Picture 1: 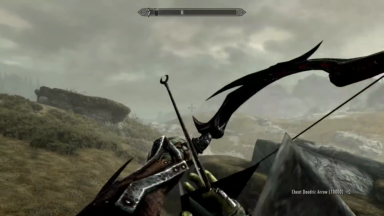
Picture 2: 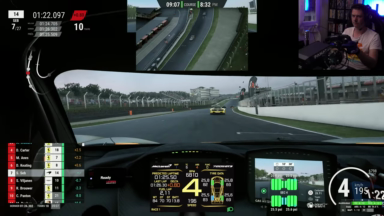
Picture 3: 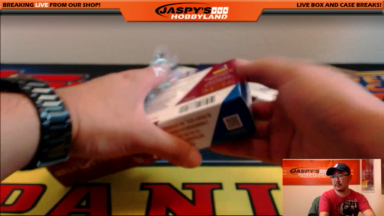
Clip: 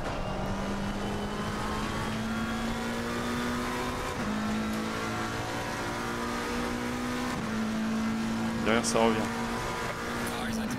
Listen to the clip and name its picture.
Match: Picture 2